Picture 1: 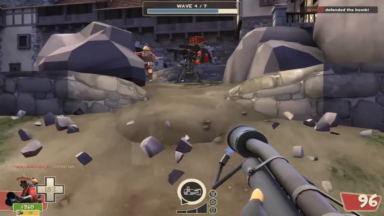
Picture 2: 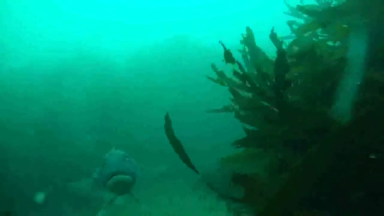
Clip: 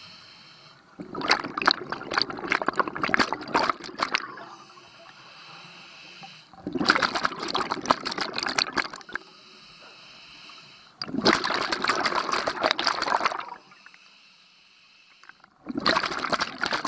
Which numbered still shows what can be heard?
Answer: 2